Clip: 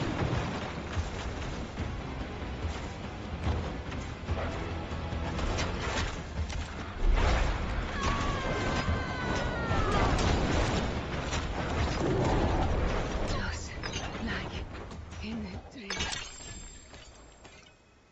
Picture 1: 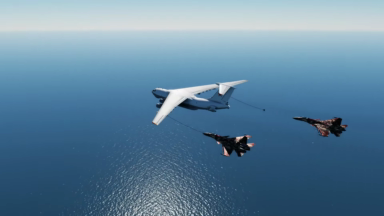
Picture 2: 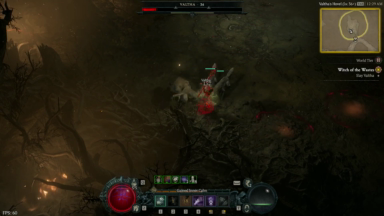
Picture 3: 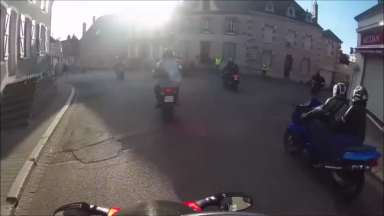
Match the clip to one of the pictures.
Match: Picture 2